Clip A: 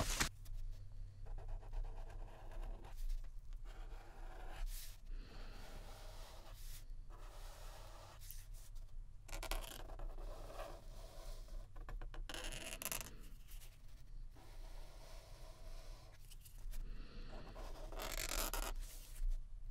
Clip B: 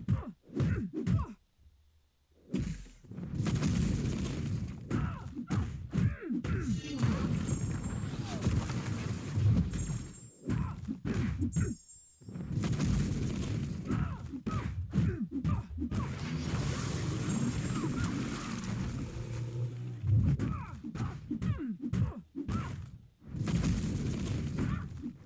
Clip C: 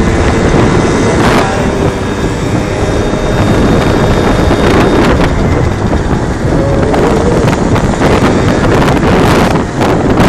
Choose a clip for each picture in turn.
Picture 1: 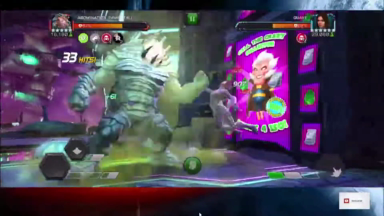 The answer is B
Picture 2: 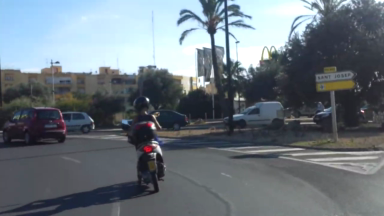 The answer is C